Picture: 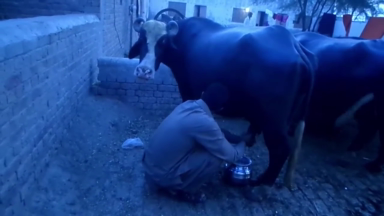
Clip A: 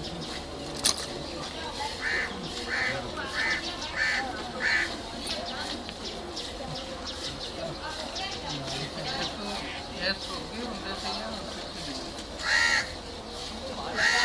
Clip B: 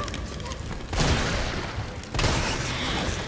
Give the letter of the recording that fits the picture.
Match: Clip A